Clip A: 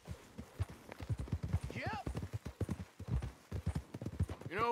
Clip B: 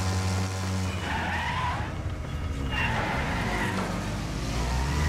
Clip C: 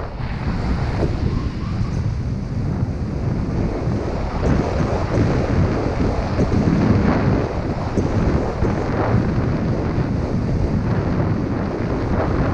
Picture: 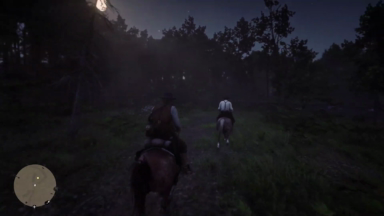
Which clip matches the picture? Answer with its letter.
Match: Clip A